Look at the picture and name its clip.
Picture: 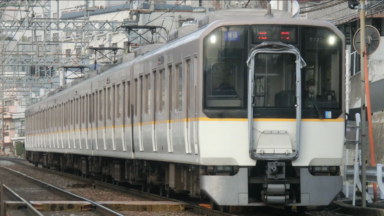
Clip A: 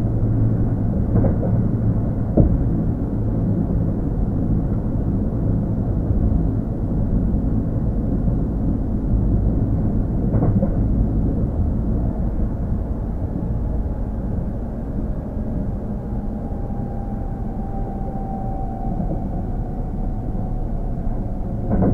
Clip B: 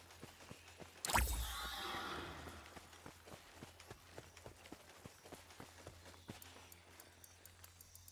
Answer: A